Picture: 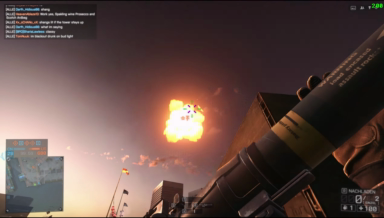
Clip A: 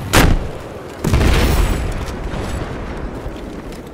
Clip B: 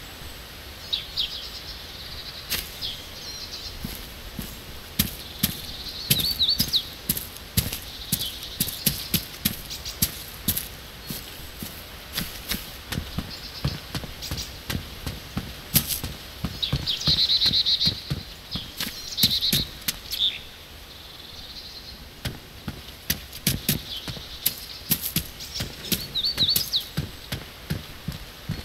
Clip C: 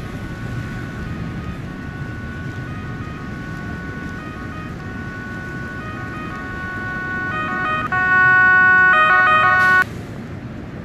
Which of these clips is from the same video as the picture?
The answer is A